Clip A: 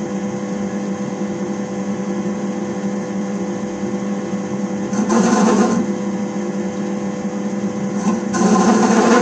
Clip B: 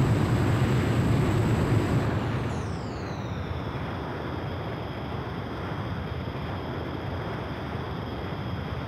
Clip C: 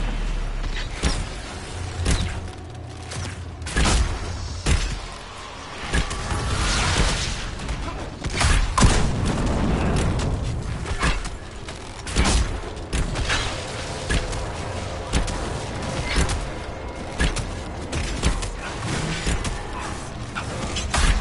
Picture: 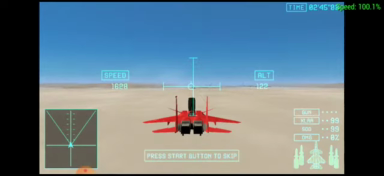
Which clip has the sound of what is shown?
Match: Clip B